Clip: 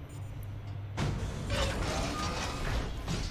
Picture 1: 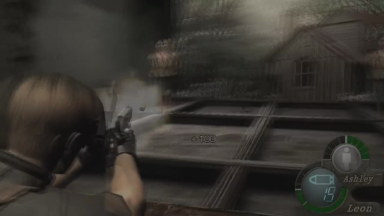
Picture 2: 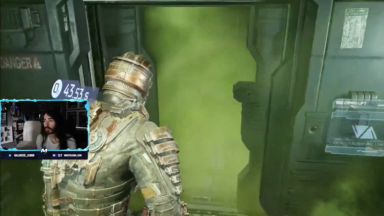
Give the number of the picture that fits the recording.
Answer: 2